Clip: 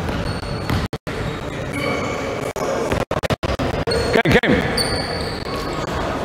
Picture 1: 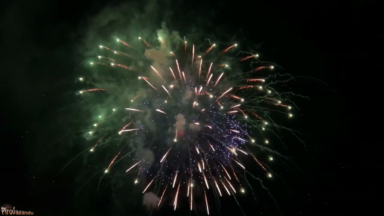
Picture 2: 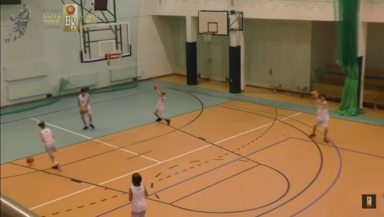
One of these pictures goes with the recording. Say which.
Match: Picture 2